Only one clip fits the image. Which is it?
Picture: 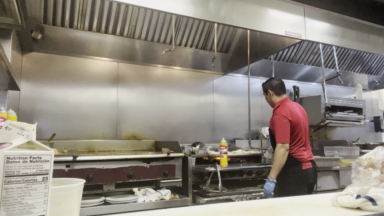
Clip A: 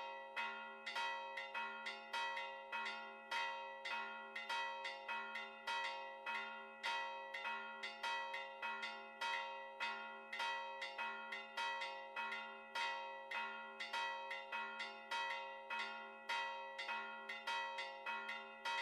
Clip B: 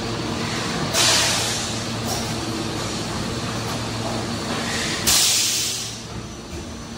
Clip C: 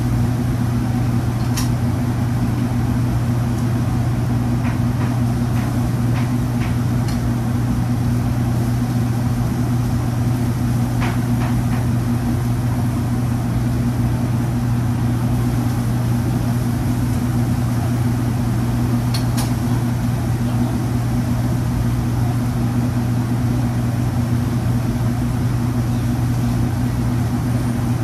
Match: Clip C